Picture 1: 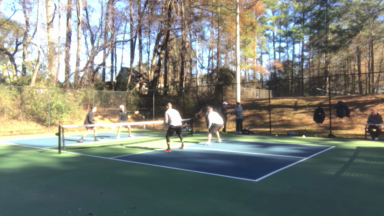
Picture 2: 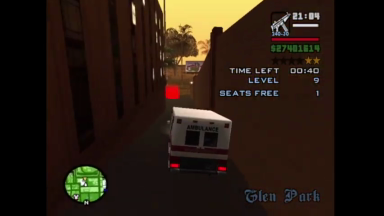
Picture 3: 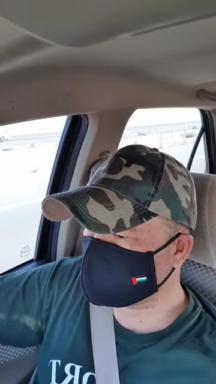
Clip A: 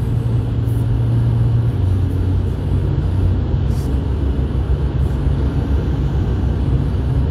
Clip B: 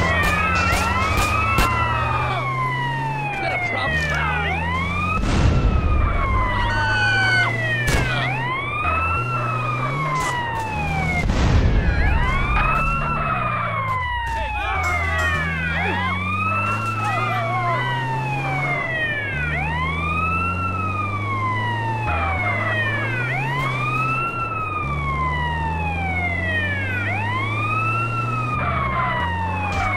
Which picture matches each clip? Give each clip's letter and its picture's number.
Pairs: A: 3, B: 2